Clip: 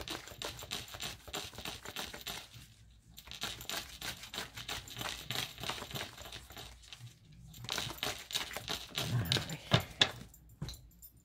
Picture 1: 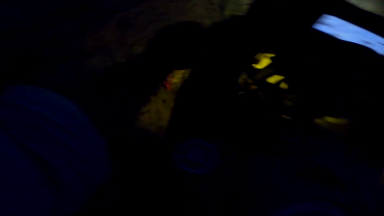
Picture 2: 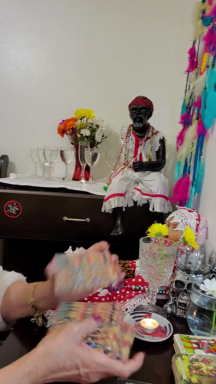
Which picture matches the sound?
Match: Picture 2